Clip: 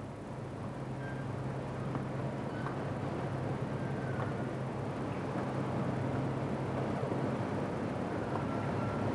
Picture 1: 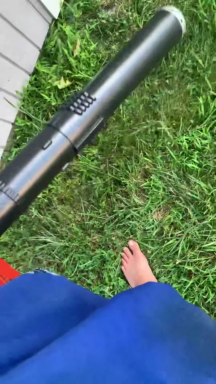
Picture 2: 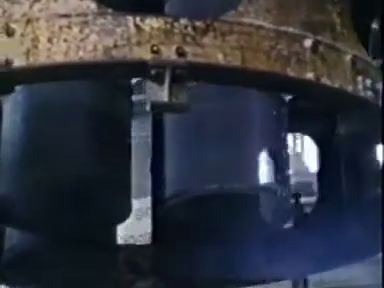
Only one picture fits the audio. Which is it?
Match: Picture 2